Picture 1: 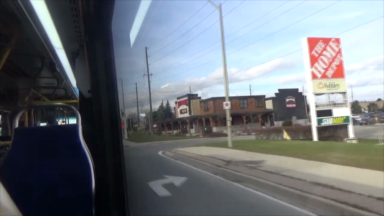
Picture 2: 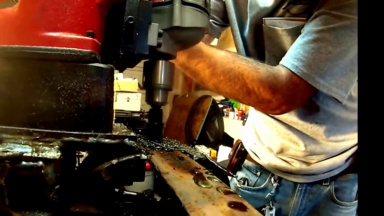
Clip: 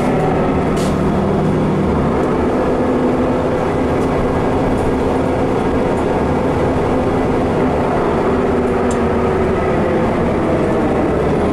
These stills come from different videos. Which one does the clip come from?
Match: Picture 1